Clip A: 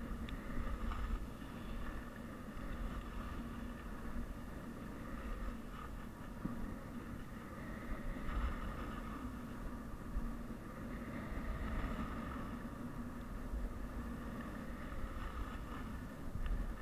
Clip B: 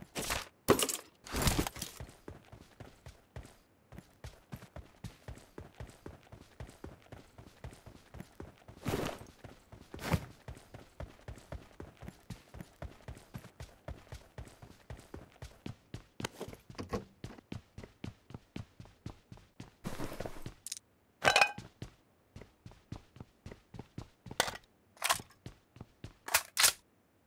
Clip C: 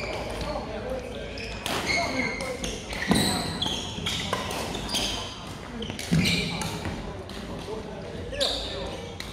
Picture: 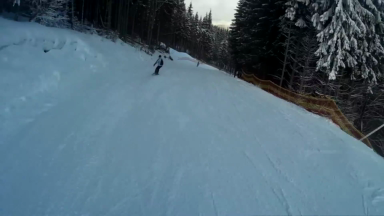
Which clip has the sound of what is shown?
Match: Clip A